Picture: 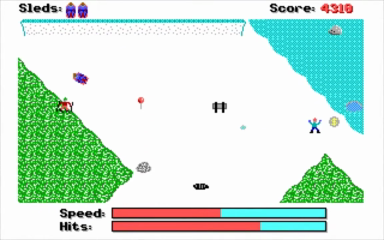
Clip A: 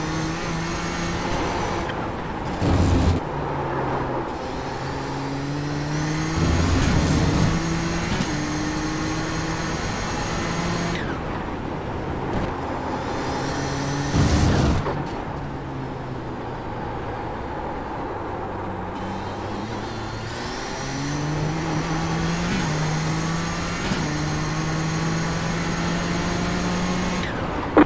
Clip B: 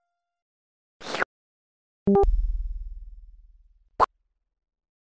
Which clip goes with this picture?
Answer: B